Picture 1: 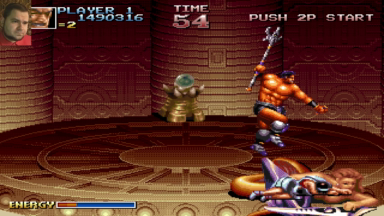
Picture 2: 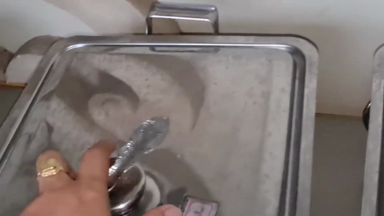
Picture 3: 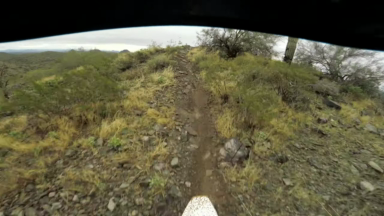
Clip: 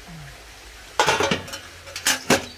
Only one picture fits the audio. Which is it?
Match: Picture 2